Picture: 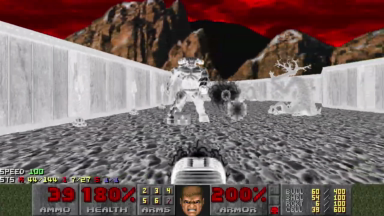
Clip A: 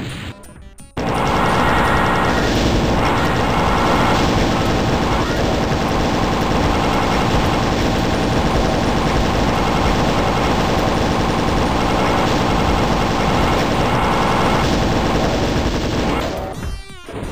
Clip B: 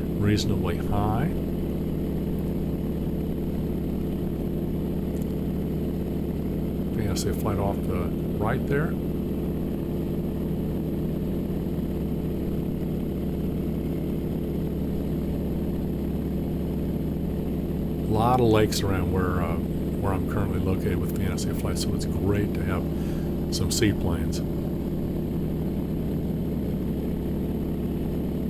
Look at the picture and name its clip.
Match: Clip A